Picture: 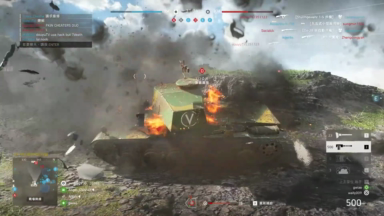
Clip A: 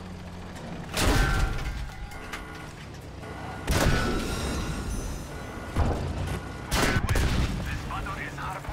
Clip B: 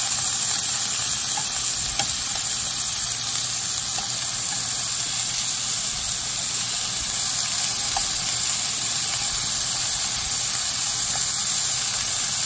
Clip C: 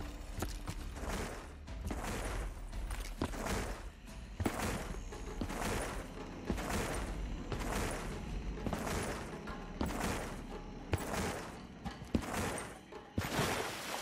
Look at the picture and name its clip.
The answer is A